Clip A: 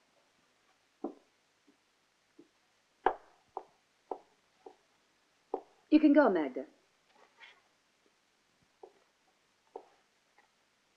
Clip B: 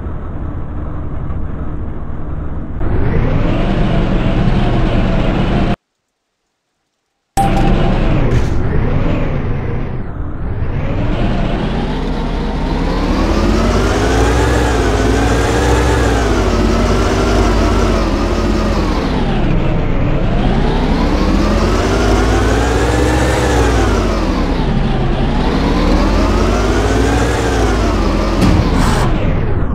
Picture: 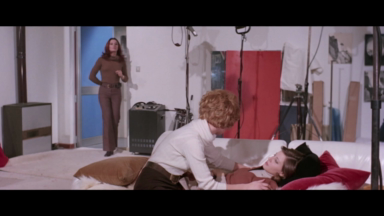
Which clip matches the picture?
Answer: A